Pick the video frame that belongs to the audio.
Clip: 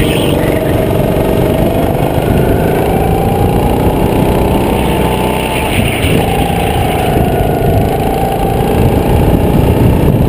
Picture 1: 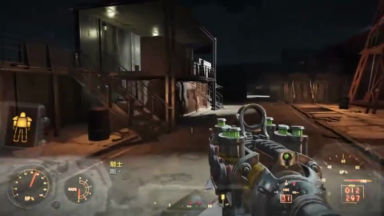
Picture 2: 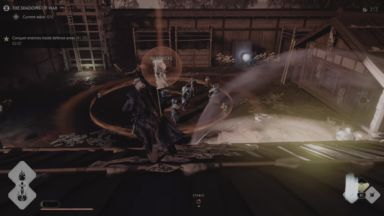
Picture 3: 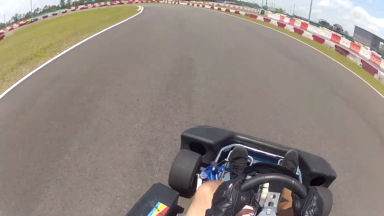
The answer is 3